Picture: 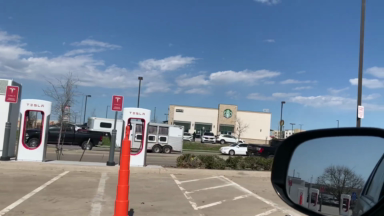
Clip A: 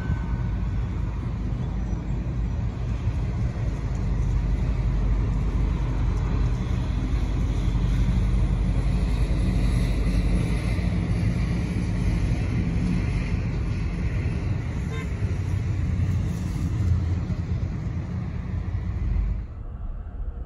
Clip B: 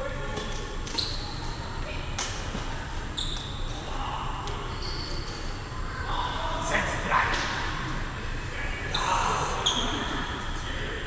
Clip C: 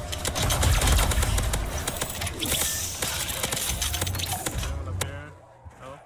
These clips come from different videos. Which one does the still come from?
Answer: A